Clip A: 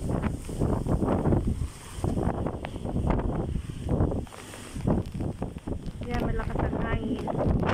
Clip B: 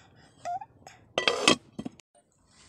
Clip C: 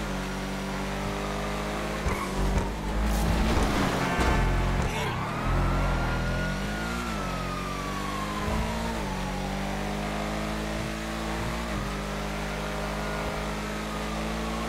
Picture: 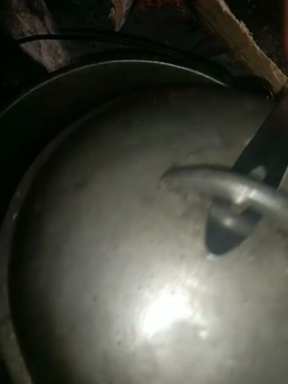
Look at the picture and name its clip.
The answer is B